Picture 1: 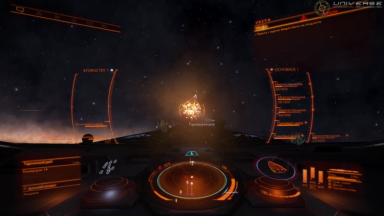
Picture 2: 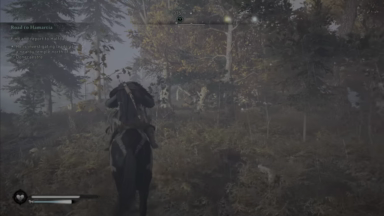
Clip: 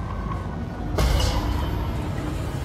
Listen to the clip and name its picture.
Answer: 1